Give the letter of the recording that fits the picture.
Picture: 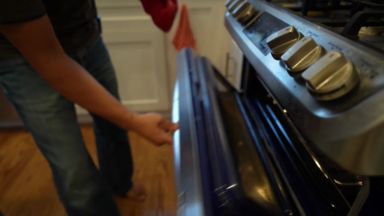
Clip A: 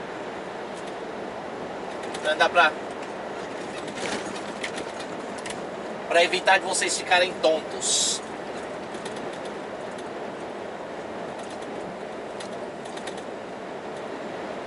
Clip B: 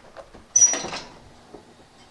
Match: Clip B